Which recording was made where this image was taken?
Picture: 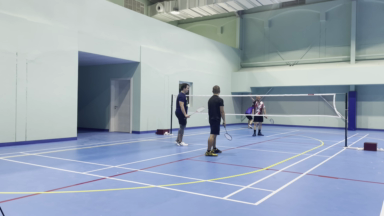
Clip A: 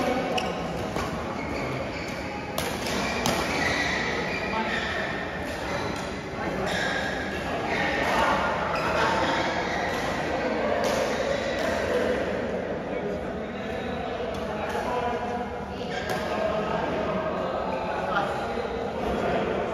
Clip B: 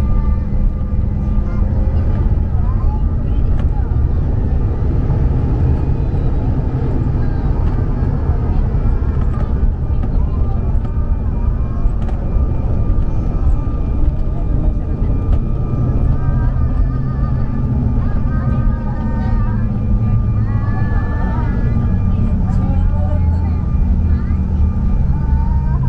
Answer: A